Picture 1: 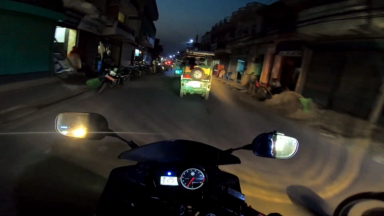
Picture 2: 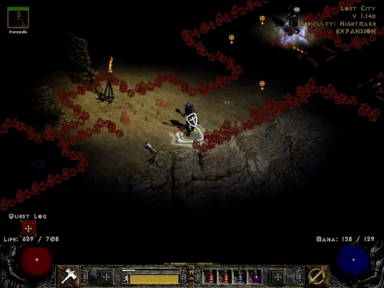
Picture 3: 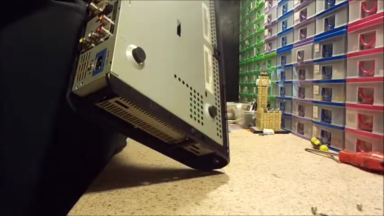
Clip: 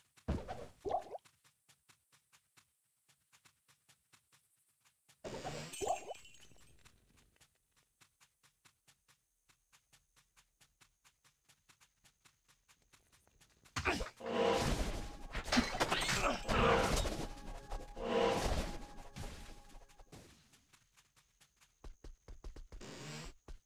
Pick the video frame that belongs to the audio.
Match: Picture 2